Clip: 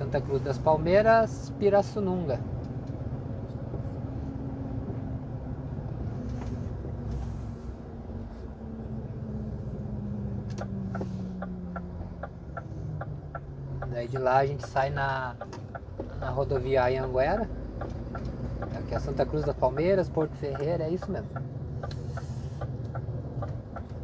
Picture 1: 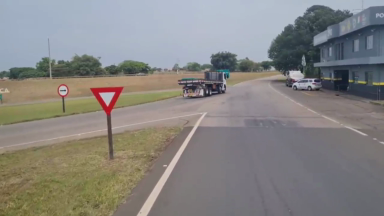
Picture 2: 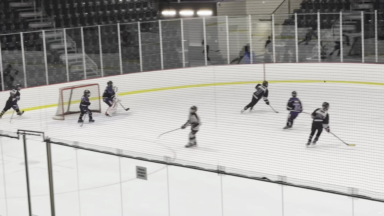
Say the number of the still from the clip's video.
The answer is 1